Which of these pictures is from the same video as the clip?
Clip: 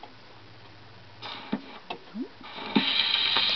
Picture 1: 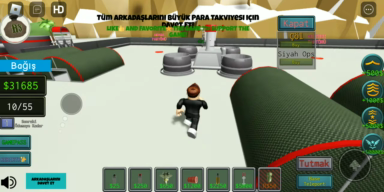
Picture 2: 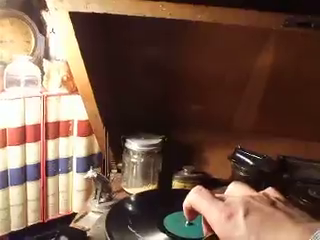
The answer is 2